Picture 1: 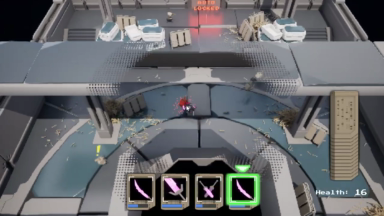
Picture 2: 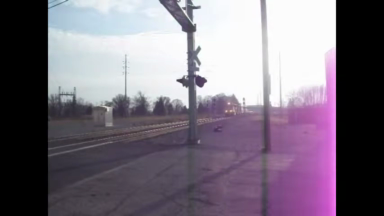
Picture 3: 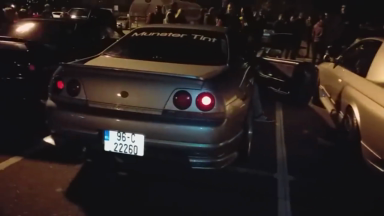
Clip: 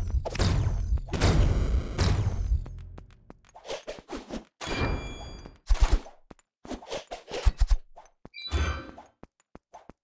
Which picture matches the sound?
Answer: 1